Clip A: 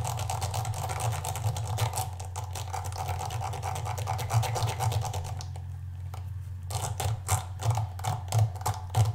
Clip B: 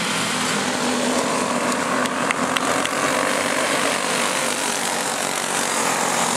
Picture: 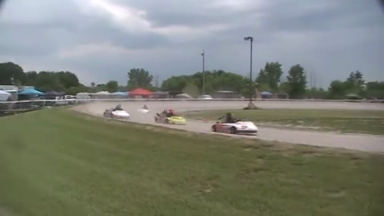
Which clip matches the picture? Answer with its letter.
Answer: B